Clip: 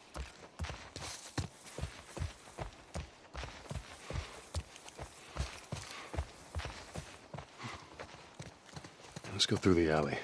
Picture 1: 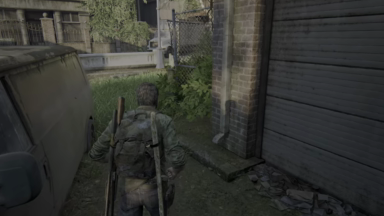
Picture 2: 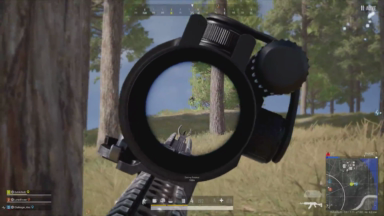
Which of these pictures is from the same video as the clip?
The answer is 1